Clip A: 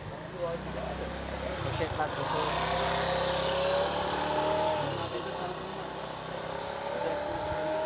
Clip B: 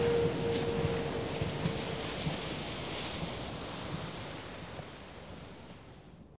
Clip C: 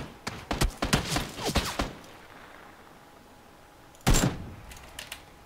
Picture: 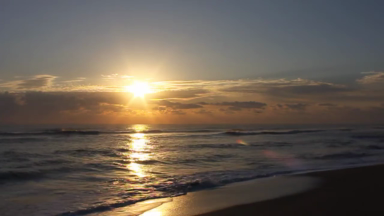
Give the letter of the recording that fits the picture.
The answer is B